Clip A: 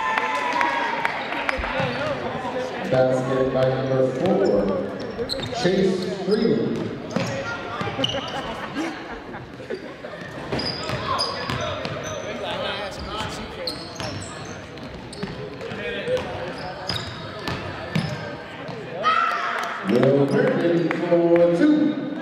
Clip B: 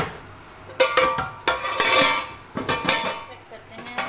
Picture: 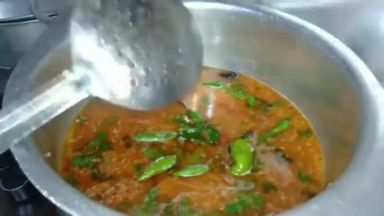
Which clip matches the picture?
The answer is B